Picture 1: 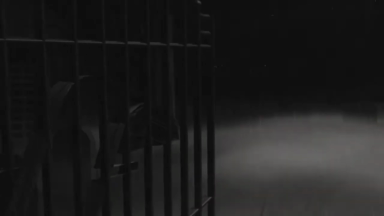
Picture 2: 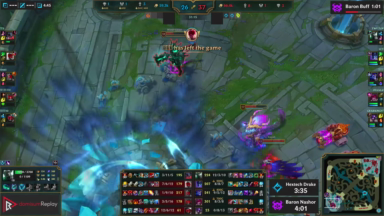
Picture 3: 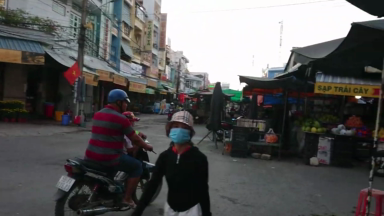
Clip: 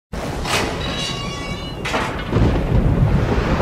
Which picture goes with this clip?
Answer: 1